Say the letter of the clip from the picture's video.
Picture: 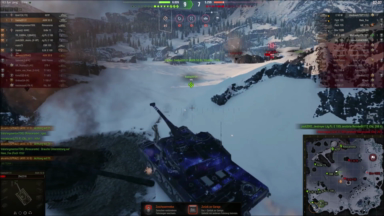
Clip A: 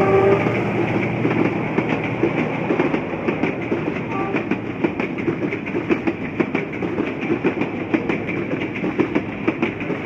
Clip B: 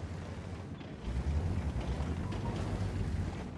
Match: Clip B